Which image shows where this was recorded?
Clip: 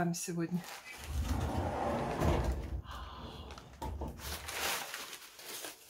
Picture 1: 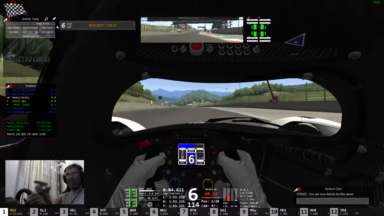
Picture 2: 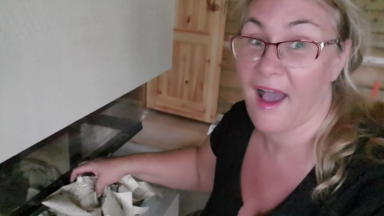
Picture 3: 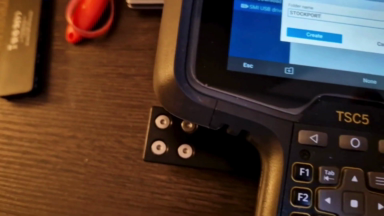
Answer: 2